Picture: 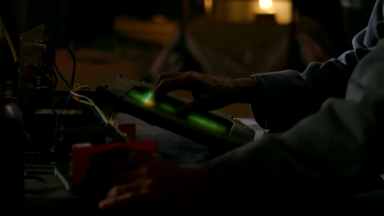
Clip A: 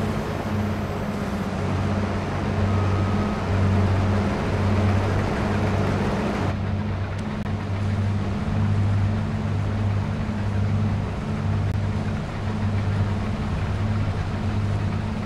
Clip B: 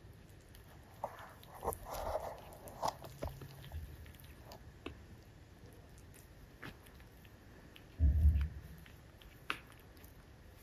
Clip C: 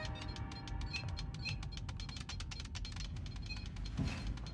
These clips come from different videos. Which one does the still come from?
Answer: C